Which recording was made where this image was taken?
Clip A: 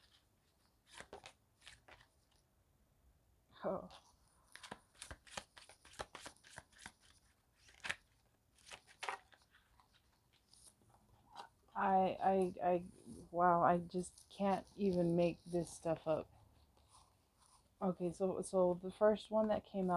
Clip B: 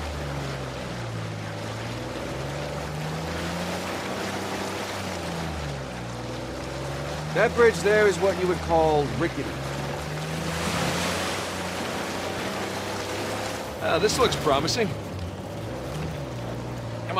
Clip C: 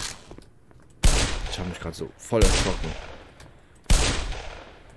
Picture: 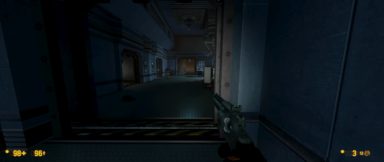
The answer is C